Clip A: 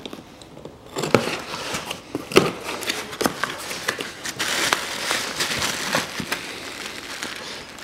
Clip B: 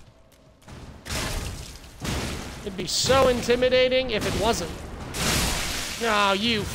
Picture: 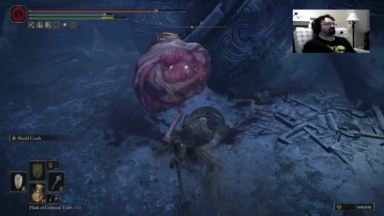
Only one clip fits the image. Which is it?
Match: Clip B